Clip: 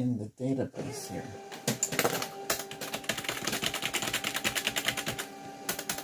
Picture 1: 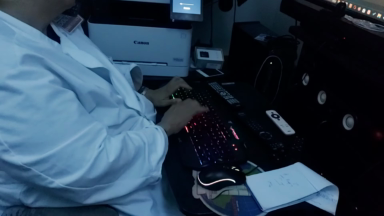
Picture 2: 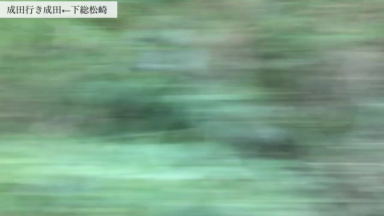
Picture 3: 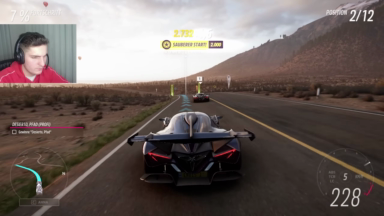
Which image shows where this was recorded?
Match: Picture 1